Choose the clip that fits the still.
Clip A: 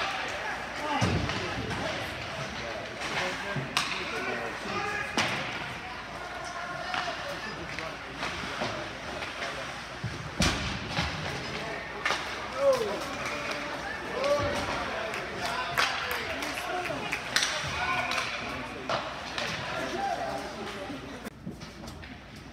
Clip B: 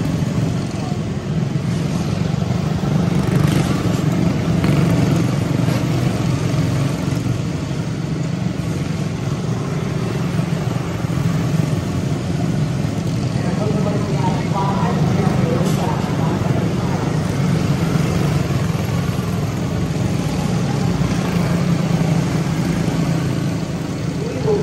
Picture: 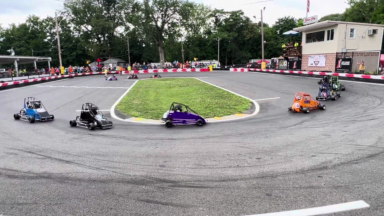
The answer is B